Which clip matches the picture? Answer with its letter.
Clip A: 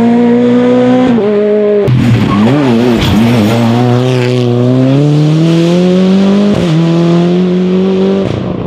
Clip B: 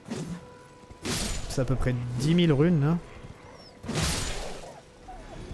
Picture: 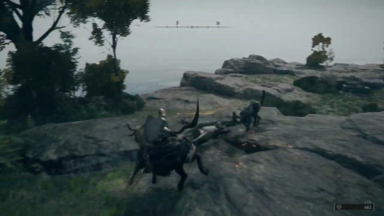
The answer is B